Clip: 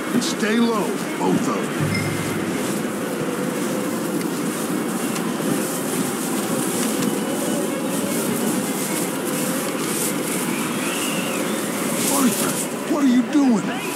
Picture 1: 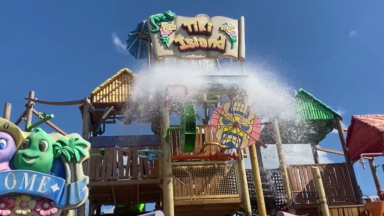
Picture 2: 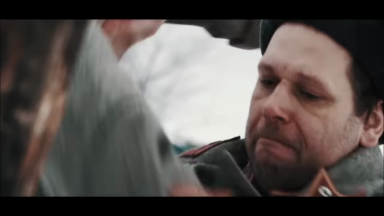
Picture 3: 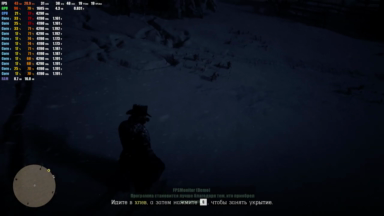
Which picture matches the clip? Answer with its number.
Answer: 3